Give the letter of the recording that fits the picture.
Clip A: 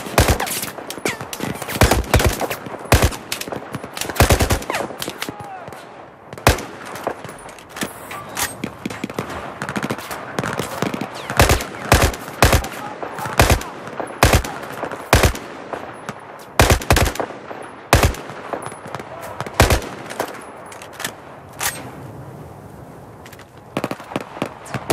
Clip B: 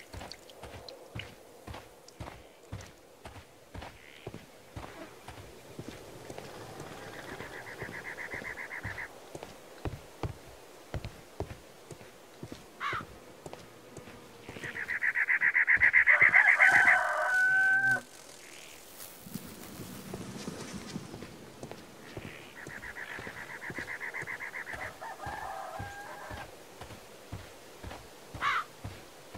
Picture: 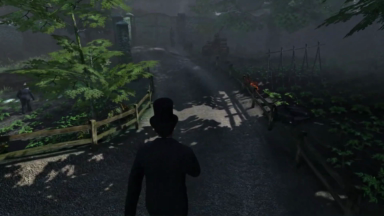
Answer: B